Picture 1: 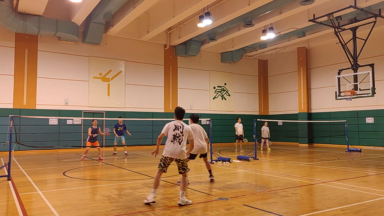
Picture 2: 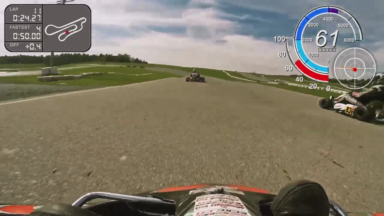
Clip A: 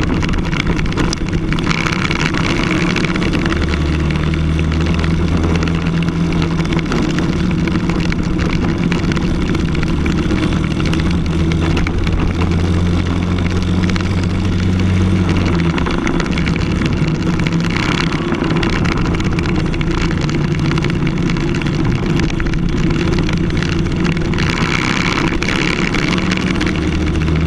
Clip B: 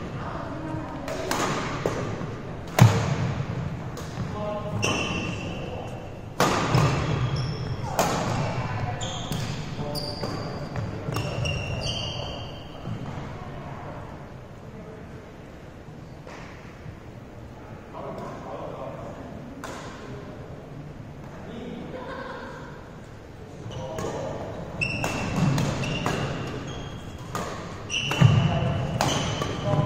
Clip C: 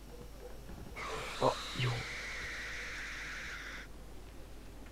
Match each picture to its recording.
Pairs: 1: B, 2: A